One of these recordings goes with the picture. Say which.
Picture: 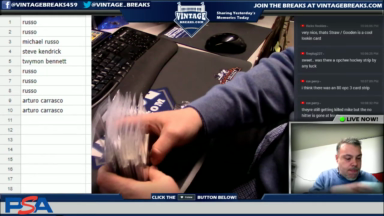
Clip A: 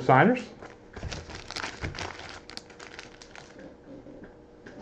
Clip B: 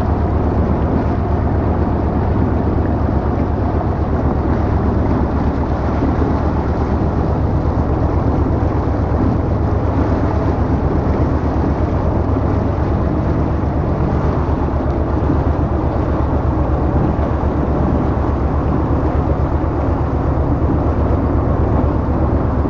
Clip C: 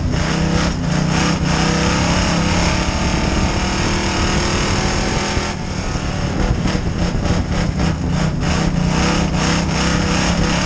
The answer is A